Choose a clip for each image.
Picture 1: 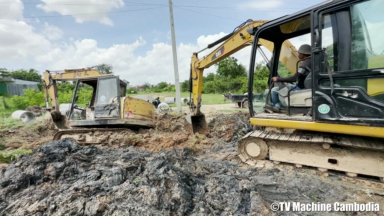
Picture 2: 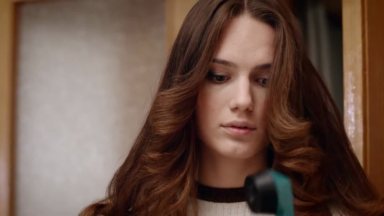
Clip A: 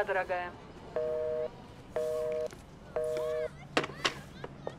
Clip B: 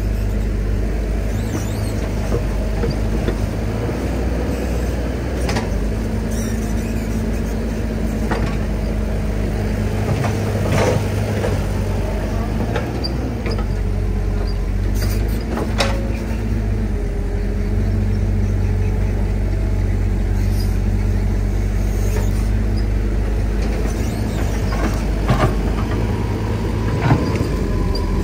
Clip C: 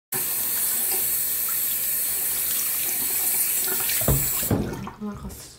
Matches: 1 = B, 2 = A